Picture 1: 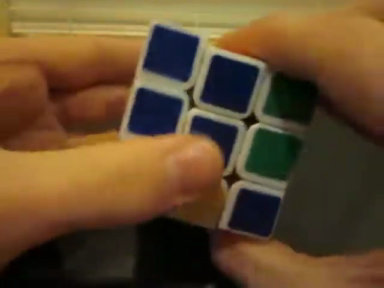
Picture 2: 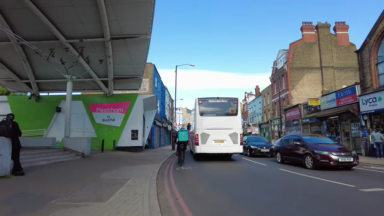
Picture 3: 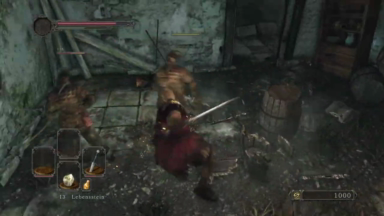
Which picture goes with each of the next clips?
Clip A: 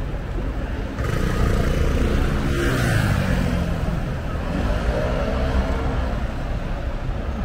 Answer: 2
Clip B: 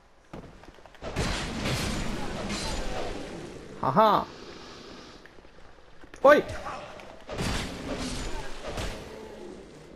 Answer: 3